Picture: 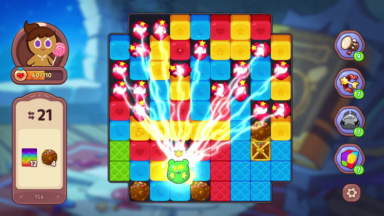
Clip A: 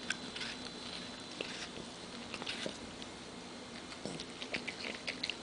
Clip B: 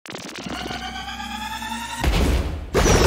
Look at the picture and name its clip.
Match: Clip B